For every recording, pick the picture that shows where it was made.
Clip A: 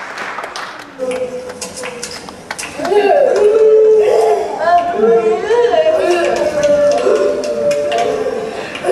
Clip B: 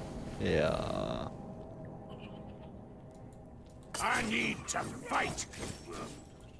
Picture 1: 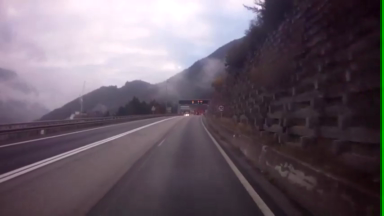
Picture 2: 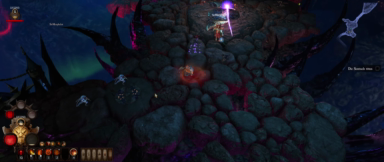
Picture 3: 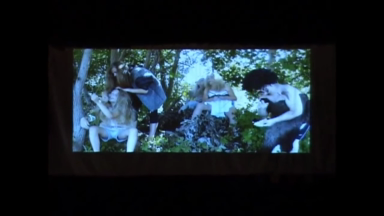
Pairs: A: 3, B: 2